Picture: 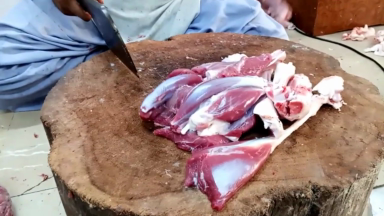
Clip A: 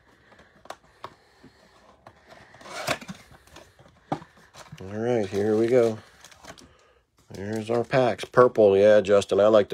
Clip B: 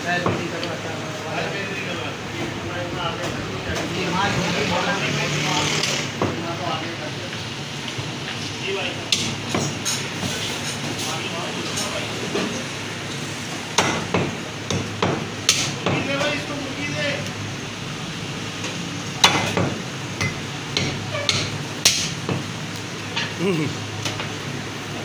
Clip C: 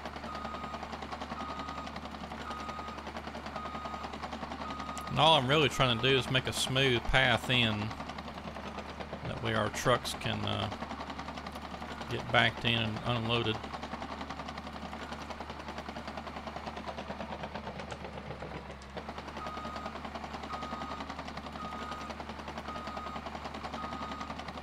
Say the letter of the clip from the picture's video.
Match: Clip B